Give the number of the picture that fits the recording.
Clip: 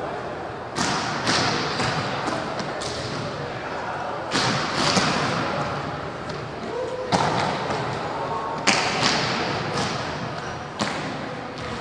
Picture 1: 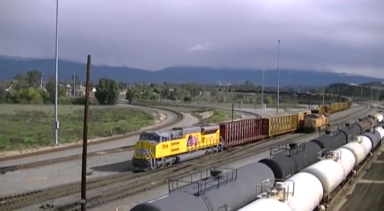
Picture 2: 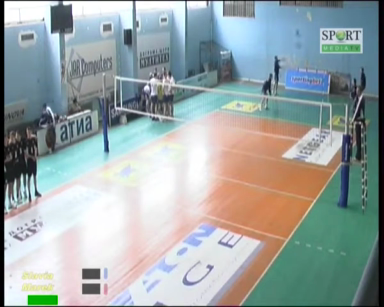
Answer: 2